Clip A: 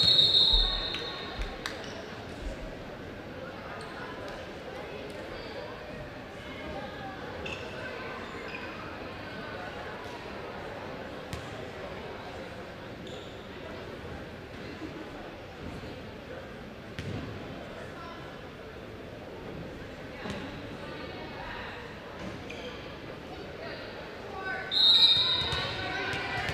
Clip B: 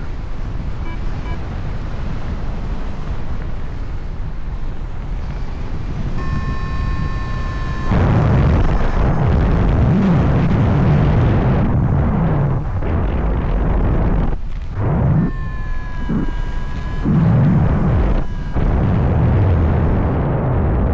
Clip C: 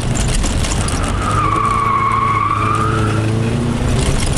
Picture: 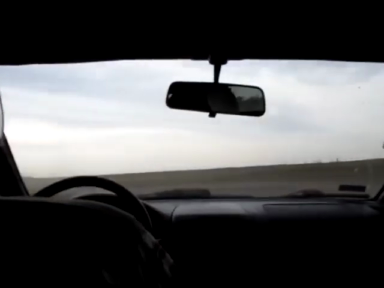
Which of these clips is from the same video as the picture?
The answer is C